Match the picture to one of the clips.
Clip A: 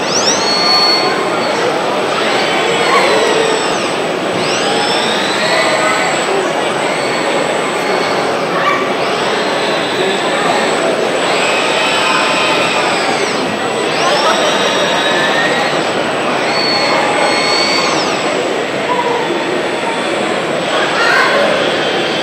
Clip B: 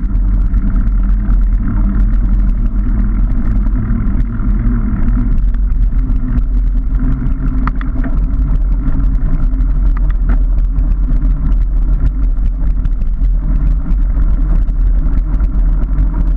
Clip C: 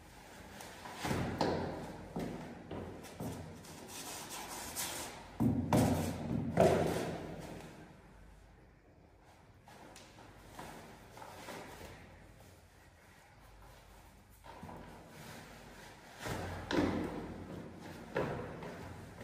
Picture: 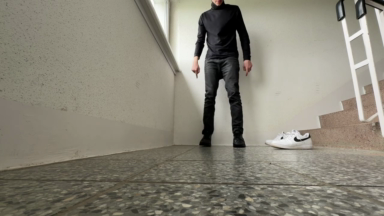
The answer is C